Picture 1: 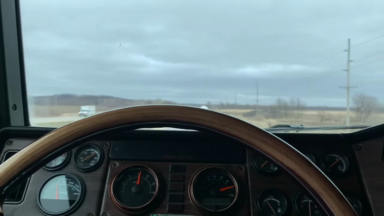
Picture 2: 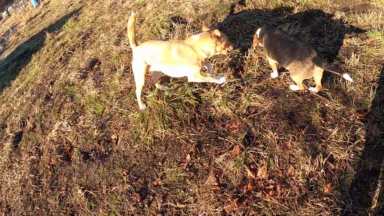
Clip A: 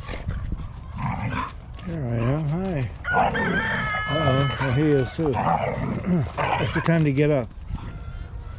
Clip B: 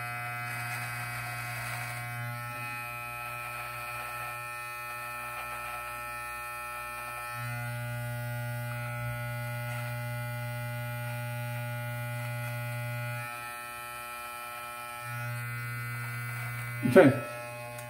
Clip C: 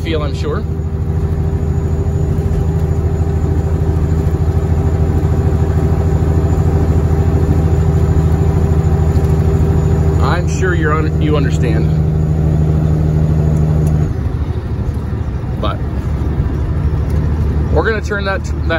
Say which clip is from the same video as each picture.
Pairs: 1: C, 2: A